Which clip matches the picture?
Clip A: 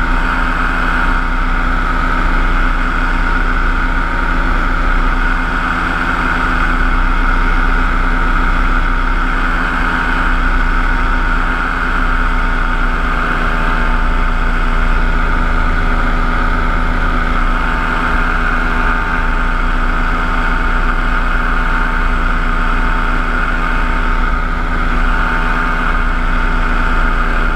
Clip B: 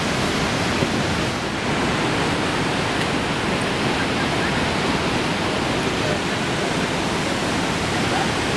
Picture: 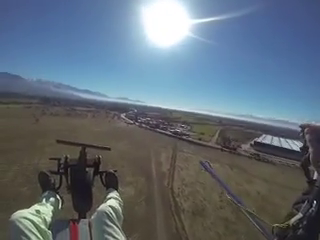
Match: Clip A